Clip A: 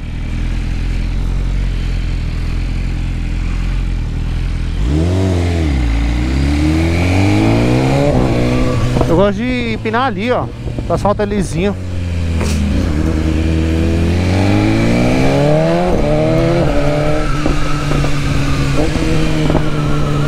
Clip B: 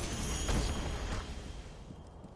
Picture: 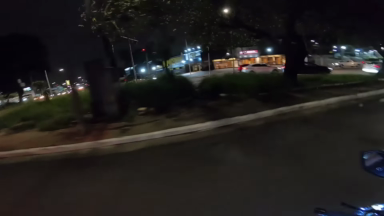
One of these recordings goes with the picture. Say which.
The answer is A